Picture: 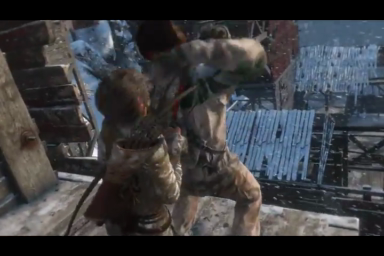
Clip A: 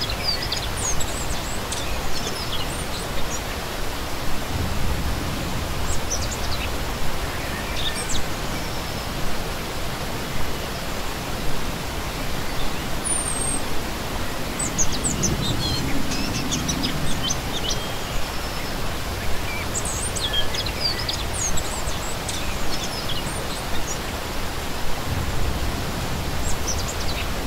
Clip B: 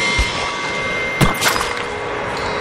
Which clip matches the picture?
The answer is B